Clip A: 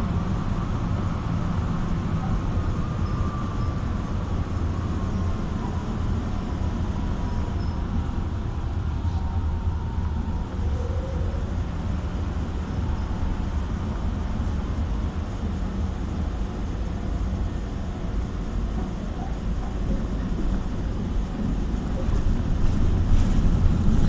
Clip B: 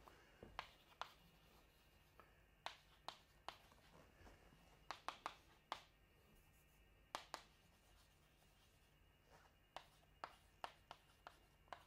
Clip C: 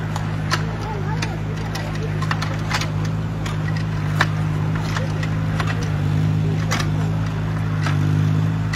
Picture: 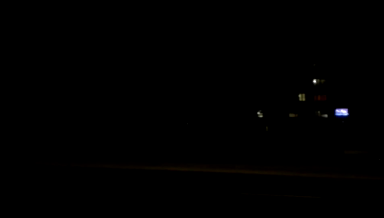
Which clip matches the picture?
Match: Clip A